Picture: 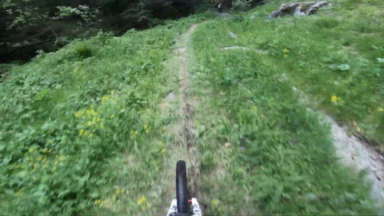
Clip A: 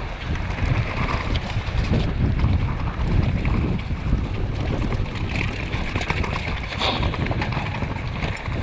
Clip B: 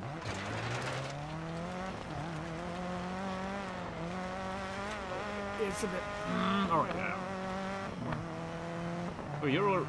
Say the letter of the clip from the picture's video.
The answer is A